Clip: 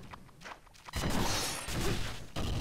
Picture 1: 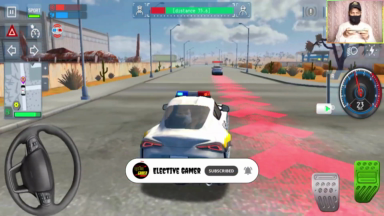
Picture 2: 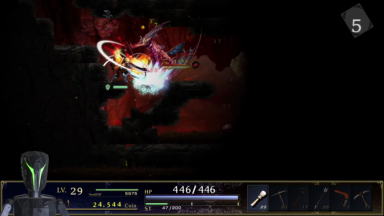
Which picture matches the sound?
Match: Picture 2